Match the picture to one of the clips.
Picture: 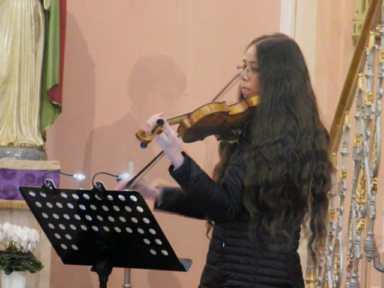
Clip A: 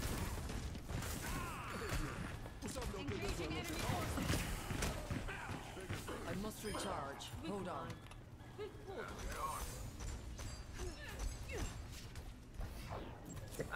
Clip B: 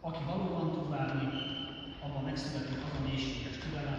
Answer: B